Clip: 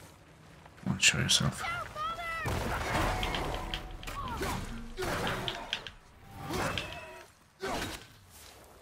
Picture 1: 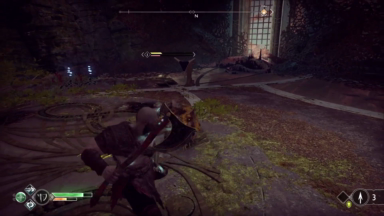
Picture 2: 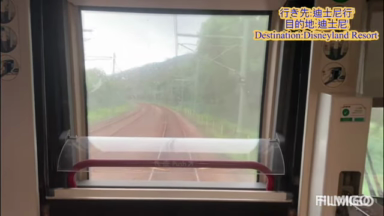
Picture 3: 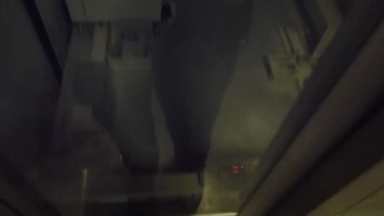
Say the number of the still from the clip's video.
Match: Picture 1